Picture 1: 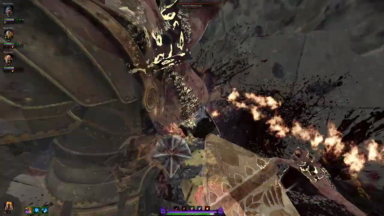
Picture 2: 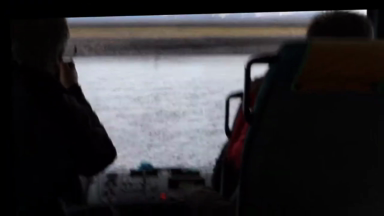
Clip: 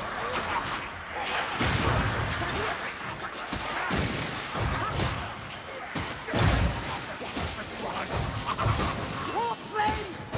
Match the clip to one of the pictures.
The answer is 1